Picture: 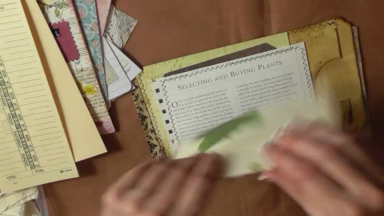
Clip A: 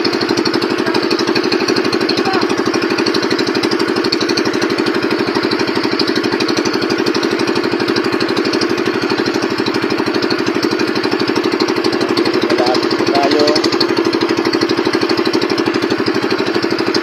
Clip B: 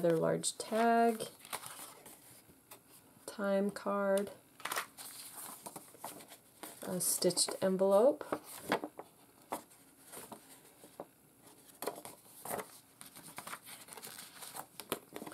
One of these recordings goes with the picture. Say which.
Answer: B